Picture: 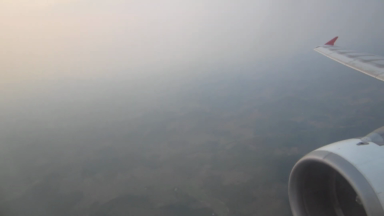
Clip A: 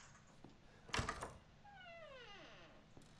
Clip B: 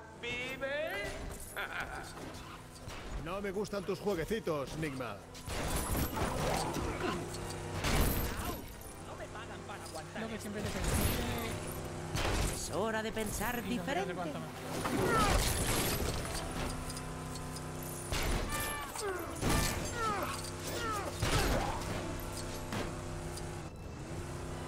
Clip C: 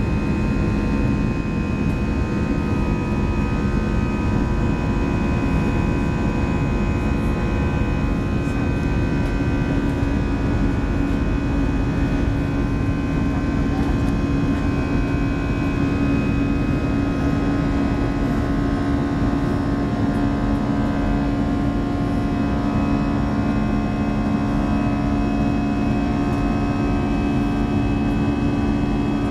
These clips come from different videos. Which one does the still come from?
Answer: C